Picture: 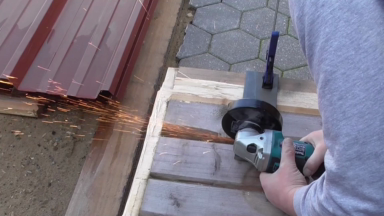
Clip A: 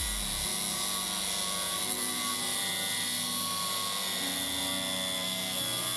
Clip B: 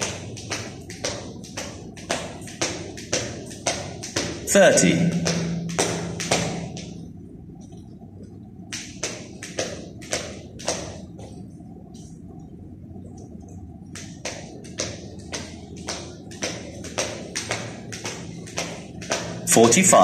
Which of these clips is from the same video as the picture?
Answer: A